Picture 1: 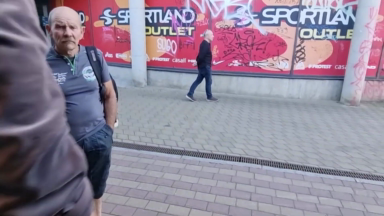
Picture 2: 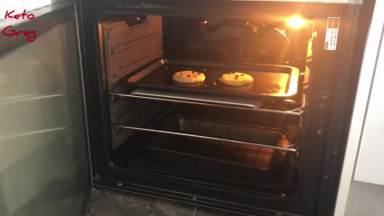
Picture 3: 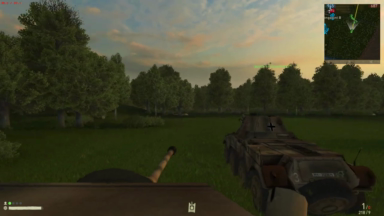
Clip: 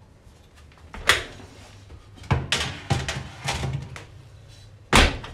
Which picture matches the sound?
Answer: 2